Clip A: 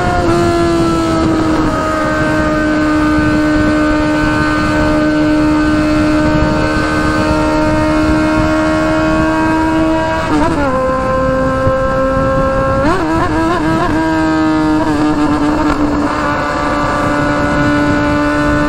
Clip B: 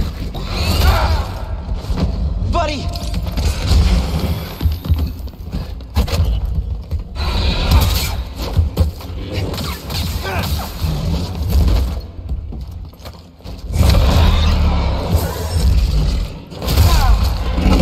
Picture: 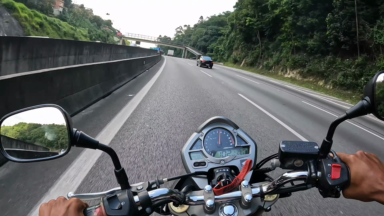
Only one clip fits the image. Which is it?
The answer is A